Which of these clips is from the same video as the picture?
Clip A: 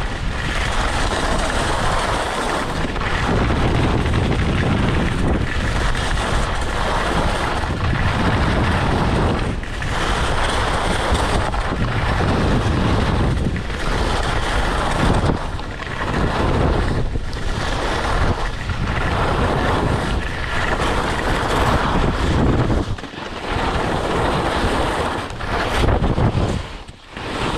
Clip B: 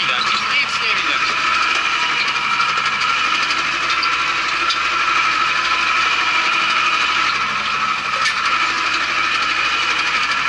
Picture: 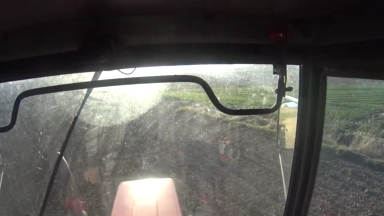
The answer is B